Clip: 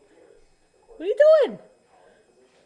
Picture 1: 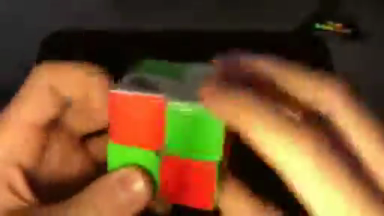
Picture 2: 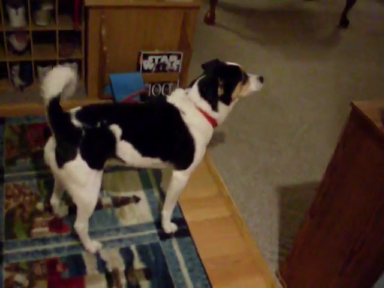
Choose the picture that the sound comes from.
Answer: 2